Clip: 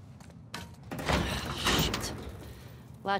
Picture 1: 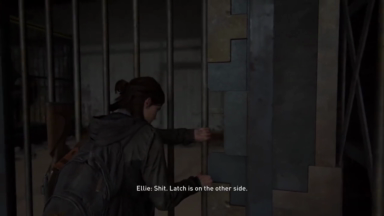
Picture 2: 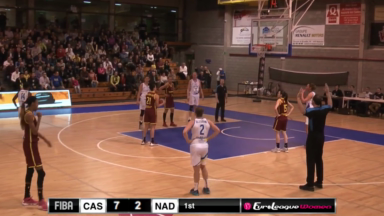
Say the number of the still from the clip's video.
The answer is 1